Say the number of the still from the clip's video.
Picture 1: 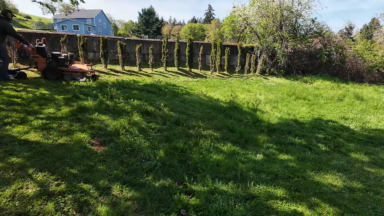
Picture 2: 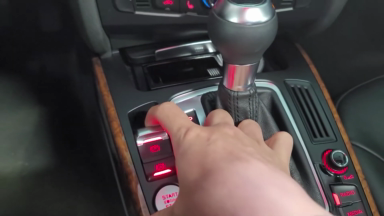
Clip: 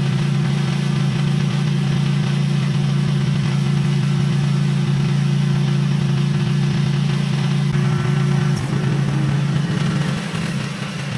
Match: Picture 1